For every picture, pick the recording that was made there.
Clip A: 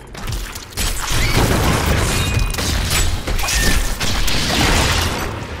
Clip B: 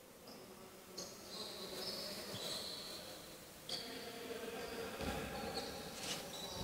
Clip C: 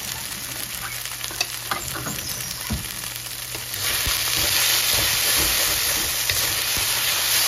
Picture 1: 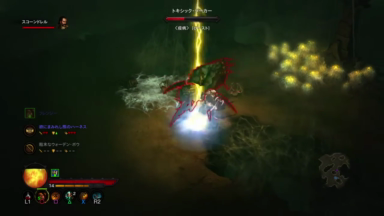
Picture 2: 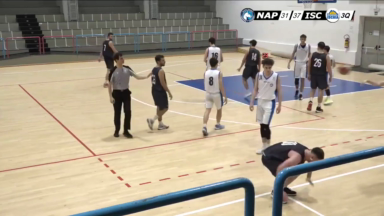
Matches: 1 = A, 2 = B